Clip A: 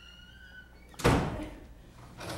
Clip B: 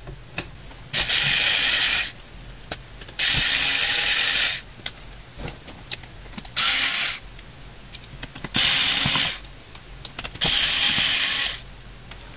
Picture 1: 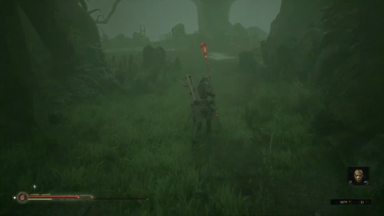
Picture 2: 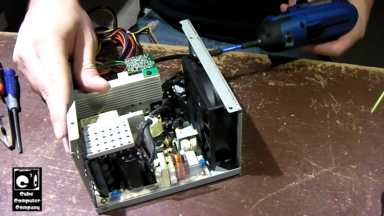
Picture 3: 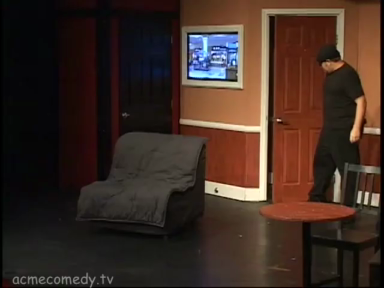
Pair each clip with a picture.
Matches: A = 3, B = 2